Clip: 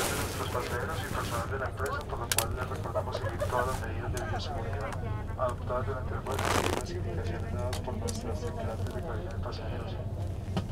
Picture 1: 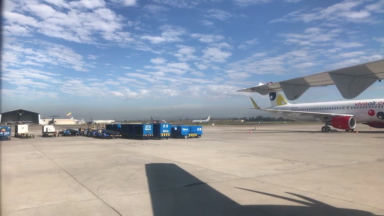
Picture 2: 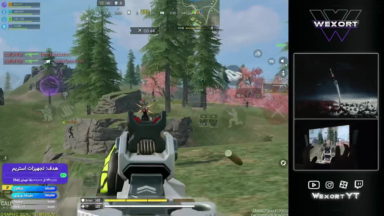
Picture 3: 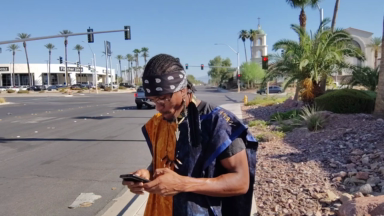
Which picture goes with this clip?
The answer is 1